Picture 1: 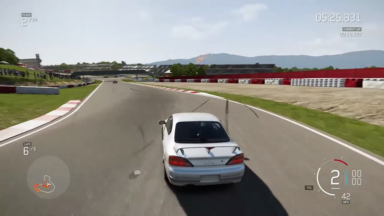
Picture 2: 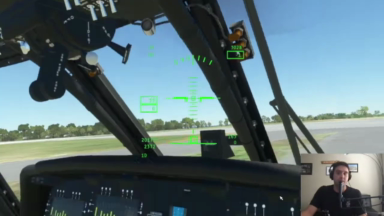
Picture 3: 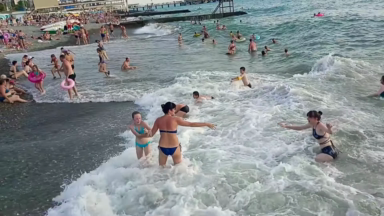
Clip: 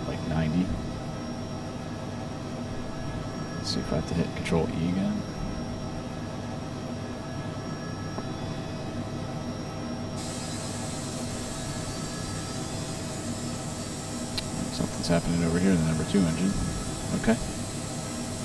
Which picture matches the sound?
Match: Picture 2